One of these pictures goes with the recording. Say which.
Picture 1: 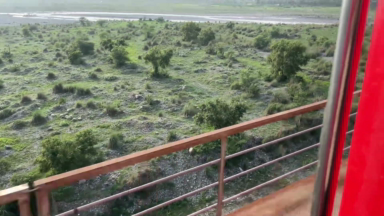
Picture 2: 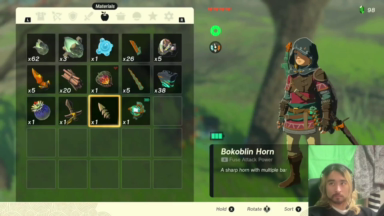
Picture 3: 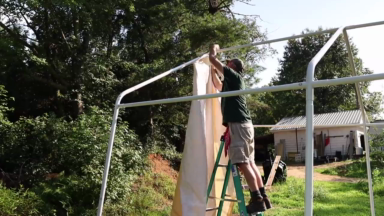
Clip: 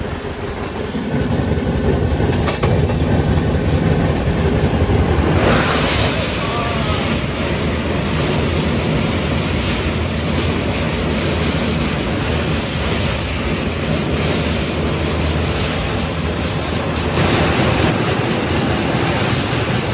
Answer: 1